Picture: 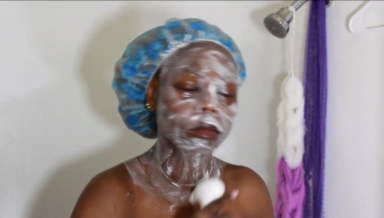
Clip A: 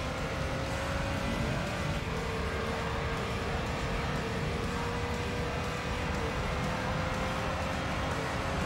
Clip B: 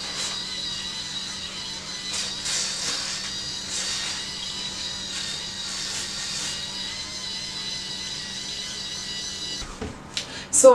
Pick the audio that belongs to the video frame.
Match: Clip B